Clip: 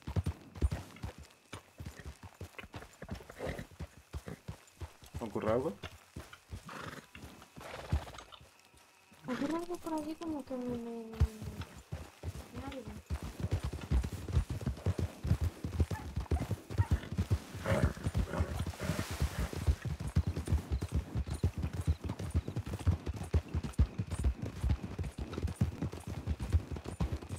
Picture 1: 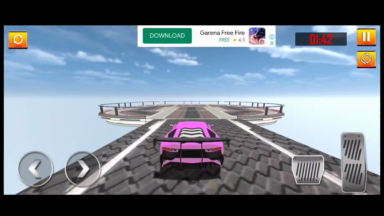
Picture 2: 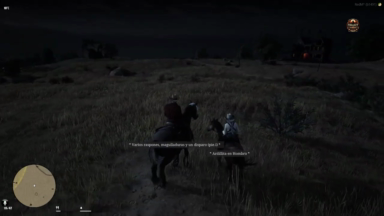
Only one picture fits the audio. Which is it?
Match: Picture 2